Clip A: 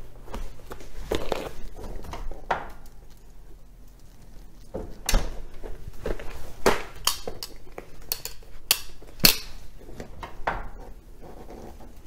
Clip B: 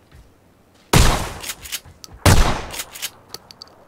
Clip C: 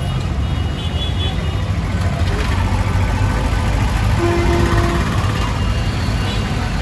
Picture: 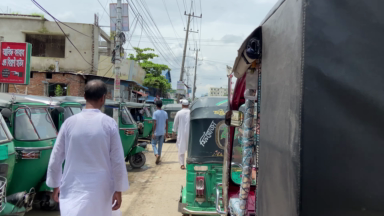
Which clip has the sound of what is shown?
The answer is C